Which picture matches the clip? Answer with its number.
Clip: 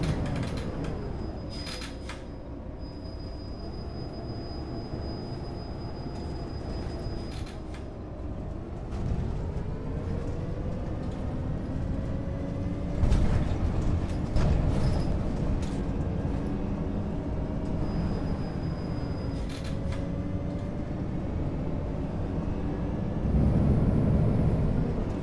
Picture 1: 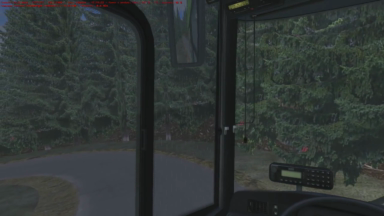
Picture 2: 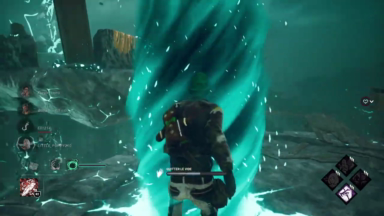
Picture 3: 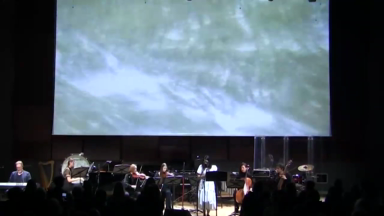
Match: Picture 1